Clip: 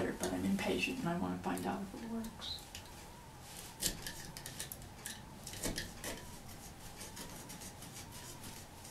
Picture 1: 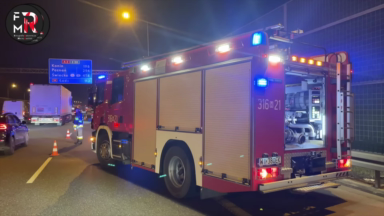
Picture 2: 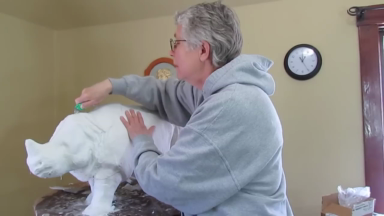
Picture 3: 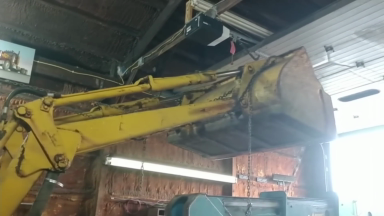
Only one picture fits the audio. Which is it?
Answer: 2